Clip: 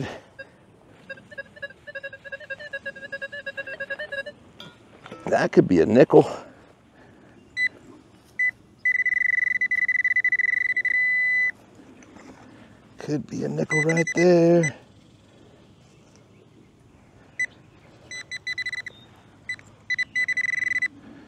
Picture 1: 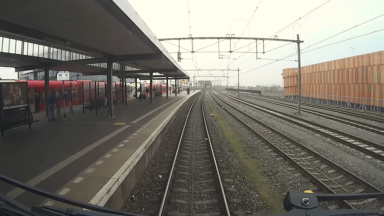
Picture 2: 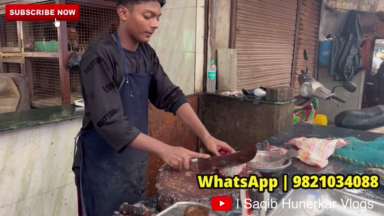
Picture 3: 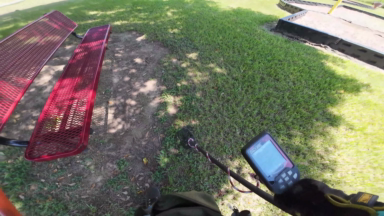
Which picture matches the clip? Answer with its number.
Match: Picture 3